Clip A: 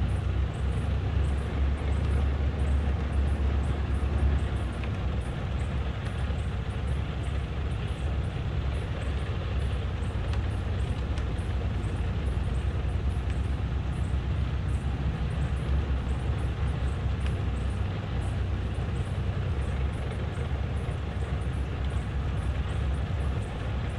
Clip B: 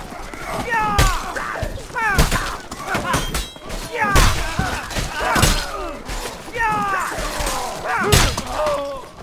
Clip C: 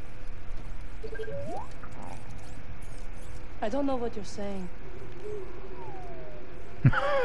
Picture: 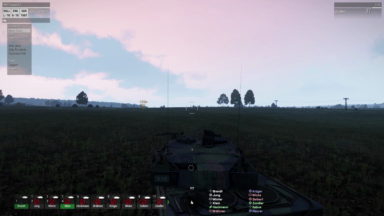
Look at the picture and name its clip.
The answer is A